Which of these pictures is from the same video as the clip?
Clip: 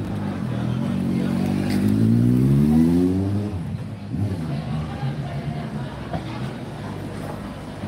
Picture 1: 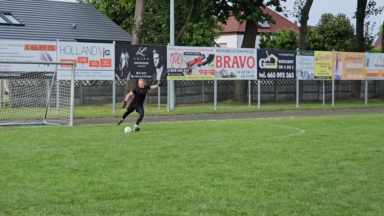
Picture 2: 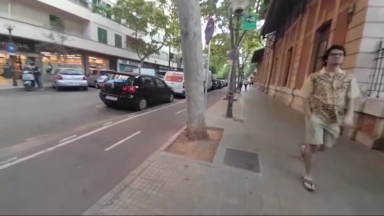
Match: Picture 2